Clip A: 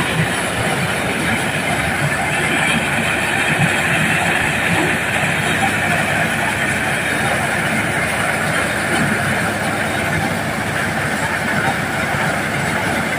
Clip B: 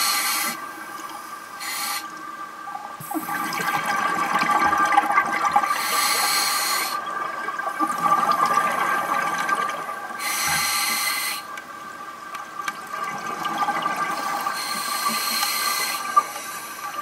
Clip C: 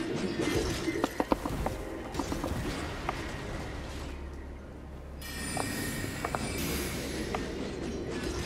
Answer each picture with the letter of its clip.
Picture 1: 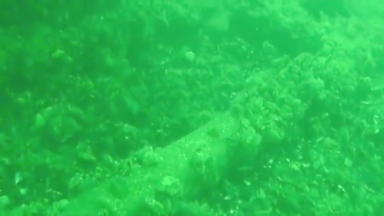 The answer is B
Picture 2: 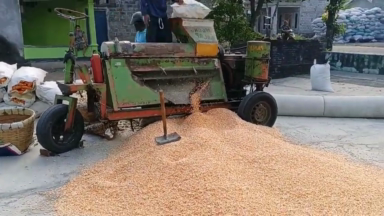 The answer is A